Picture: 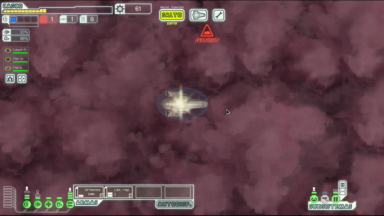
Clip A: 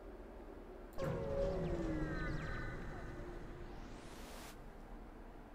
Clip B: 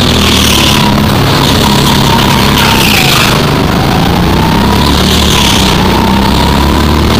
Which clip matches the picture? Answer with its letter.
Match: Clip A